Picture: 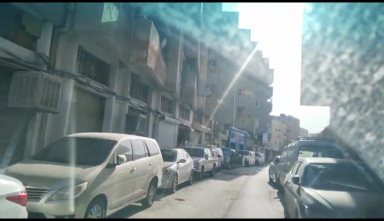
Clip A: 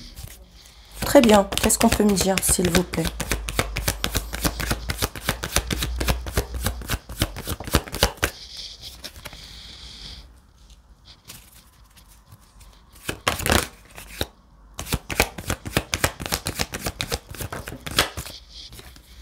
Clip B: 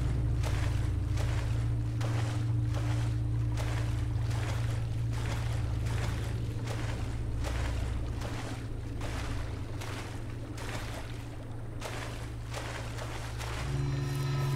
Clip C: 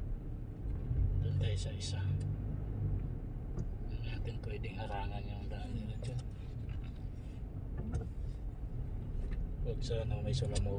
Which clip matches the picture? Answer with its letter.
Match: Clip C